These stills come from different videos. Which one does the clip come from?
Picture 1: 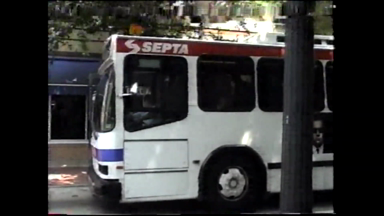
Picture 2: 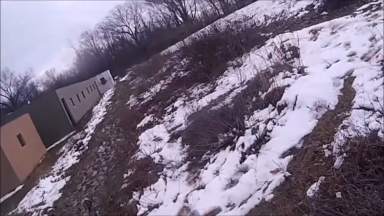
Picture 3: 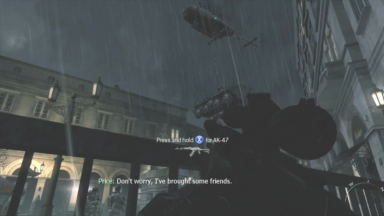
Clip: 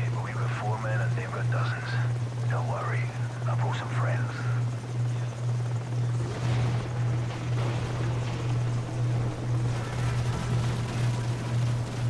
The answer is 3